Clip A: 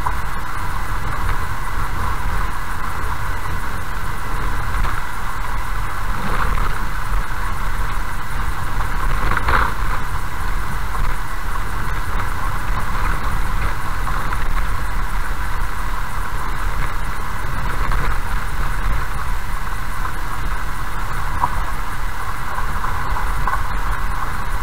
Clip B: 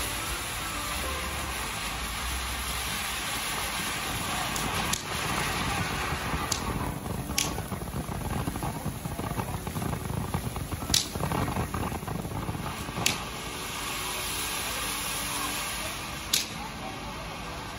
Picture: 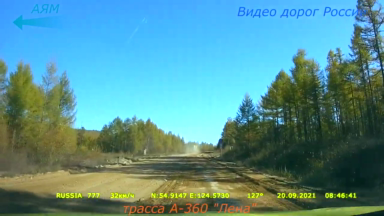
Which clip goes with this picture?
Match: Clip A